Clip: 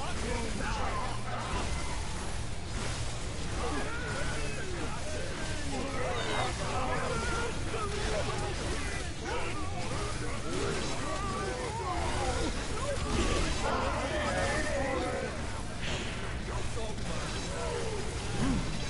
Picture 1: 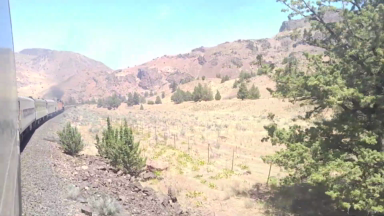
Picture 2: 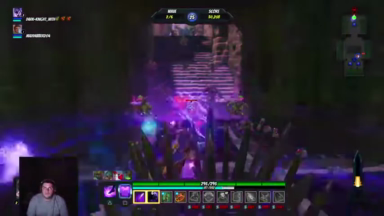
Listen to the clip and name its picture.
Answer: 2